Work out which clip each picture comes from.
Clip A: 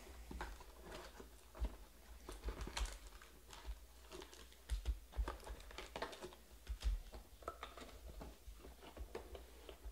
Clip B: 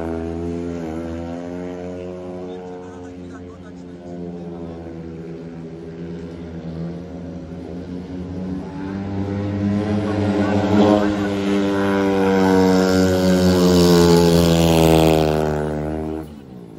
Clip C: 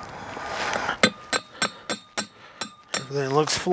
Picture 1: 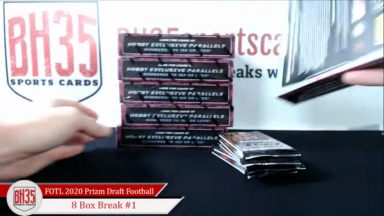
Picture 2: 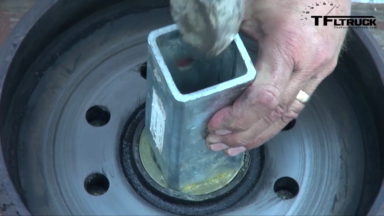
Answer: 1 A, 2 C